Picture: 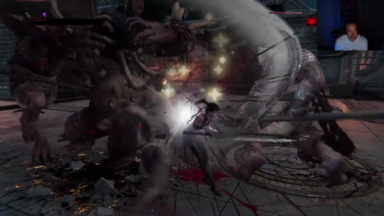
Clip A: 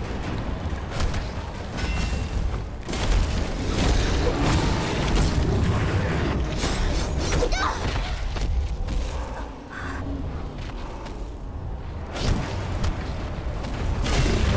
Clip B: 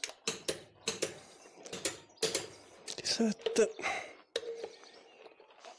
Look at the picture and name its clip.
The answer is A